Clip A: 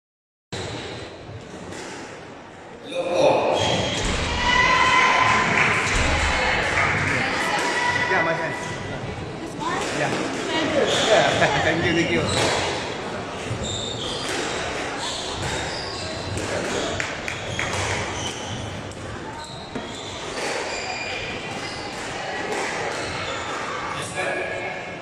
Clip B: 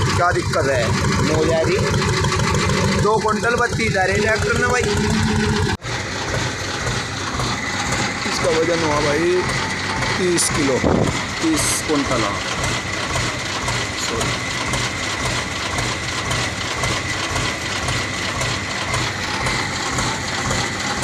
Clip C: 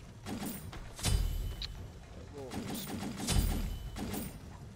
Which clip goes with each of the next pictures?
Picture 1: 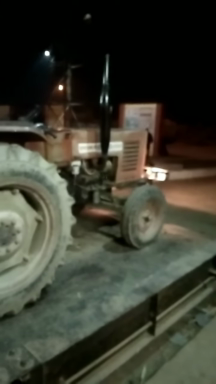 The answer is B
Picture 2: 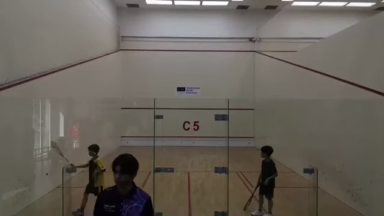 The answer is A